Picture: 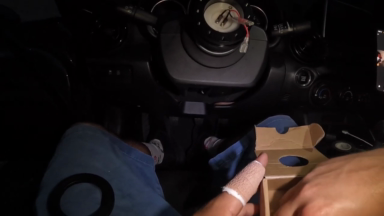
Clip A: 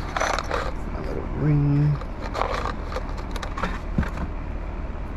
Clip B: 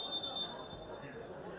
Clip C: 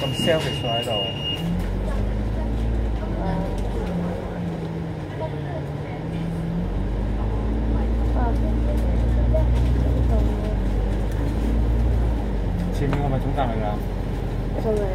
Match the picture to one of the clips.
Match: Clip A